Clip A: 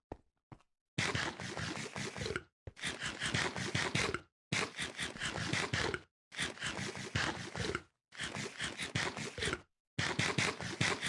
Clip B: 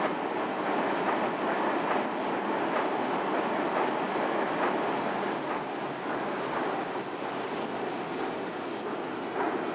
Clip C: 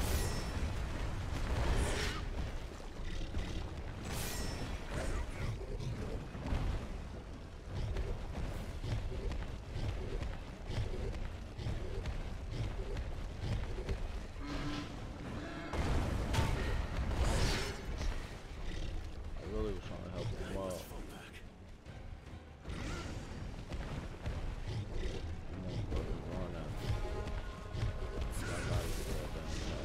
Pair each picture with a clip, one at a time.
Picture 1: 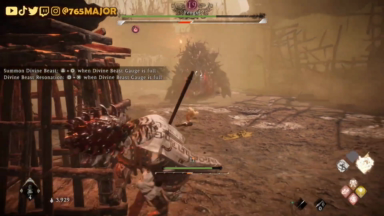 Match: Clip C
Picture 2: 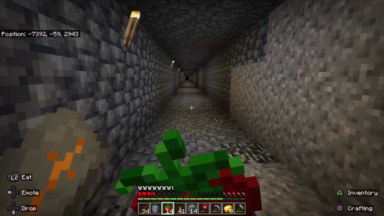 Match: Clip A